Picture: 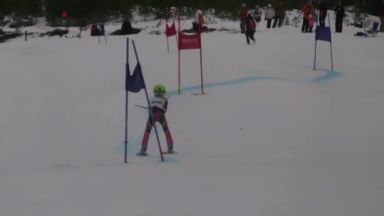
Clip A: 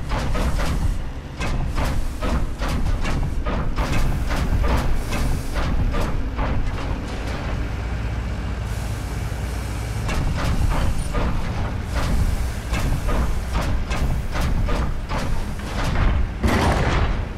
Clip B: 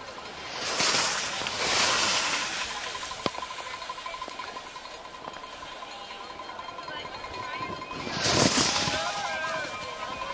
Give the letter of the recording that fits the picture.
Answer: B